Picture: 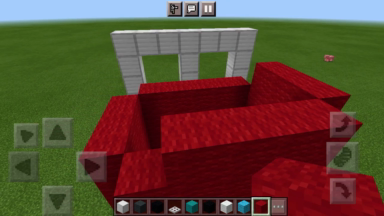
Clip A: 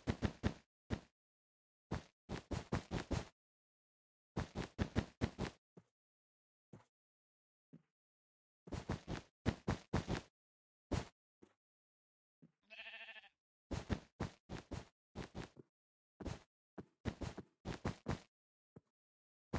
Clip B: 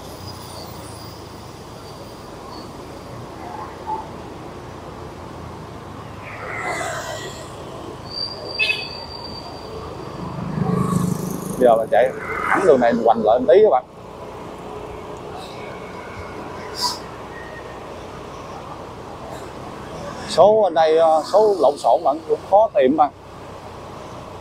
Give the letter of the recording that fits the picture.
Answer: A